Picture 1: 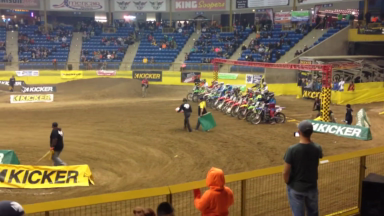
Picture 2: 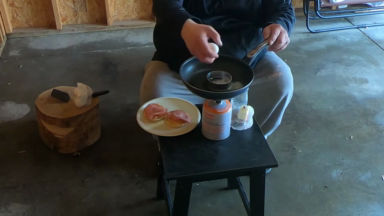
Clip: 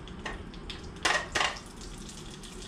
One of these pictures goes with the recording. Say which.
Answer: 2